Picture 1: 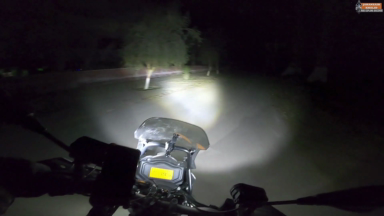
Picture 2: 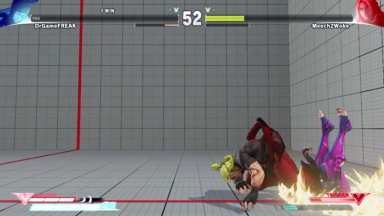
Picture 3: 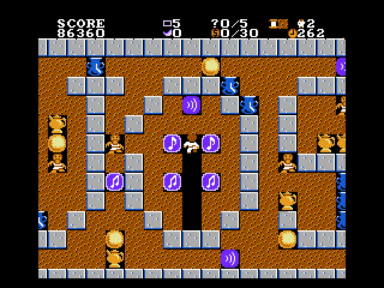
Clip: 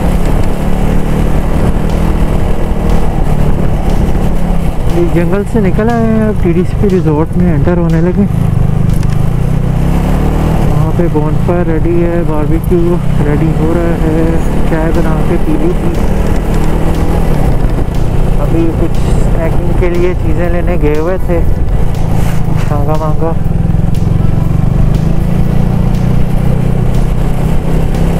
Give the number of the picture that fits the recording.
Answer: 1